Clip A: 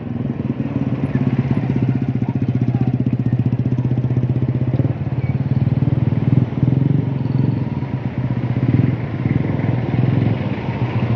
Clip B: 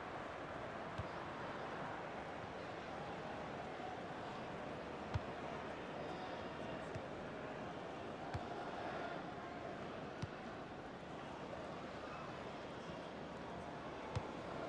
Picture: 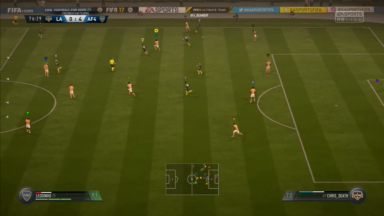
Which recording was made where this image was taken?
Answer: B